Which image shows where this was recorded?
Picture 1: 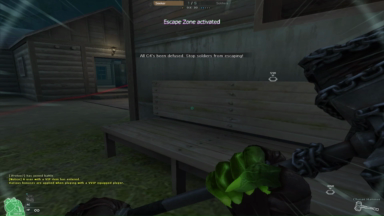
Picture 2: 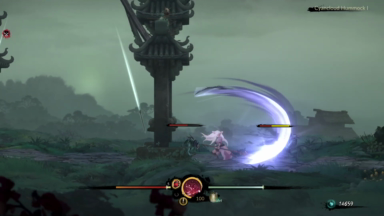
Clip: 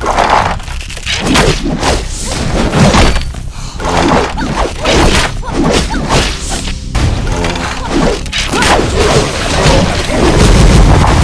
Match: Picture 2